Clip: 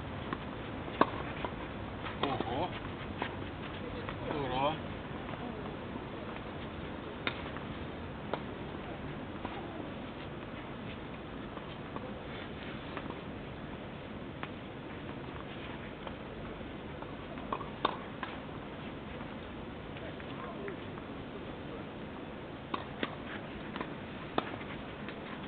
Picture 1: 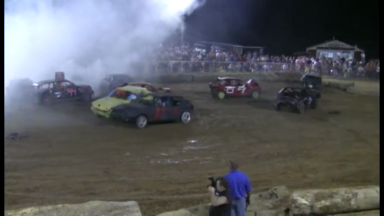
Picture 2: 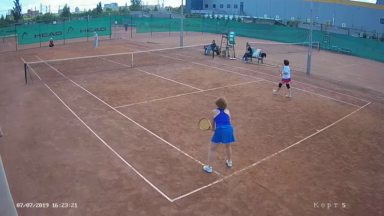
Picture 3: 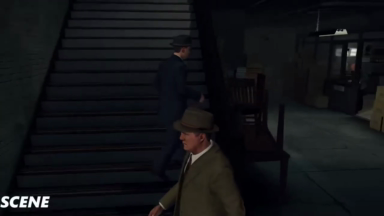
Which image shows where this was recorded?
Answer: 2